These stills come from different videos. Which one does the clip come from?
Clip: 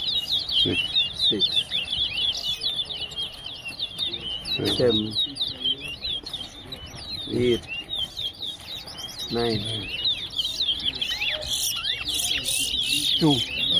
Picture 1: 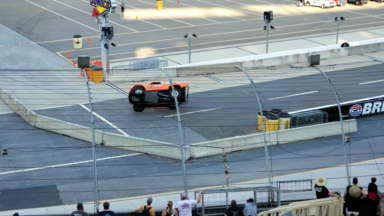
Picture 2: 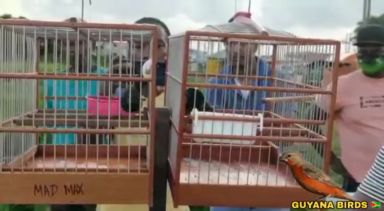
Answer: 2